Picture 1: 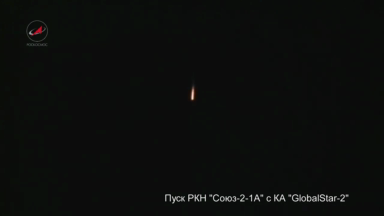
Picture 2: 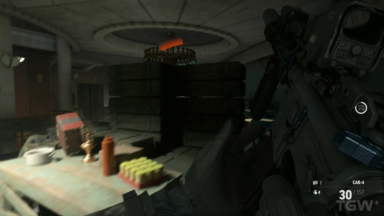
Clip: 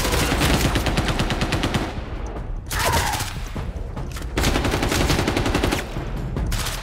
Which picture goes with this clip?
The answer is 2